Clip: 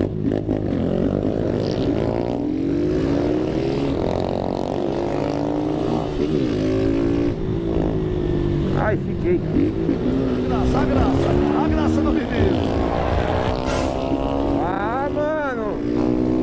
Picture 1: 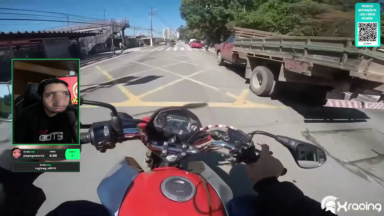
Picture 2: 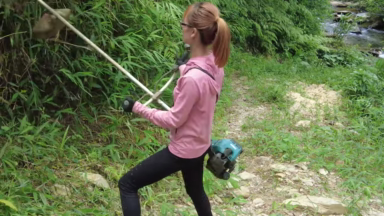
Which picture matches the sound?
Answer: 1